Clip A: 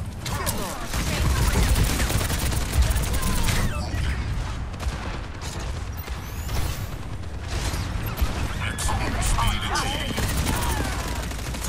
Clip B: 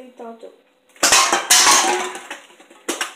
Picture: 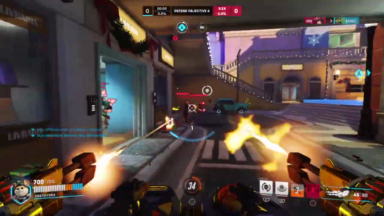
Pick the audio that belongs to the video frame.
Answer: A